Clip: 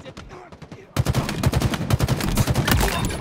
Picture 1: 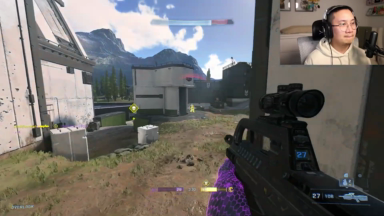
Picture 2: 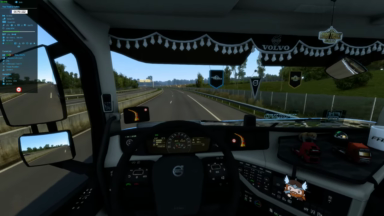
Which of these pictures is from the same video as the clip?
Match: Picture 1